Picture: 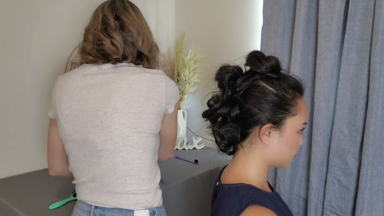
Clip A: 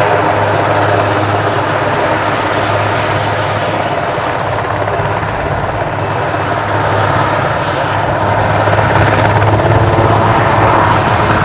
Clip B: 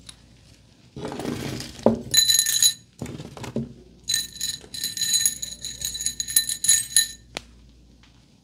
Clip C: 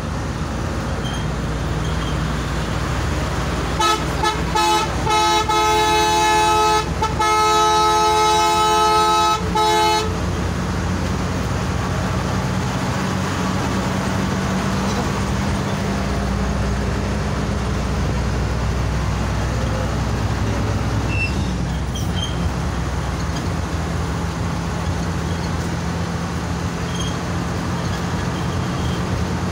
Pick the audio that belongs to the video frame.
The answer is B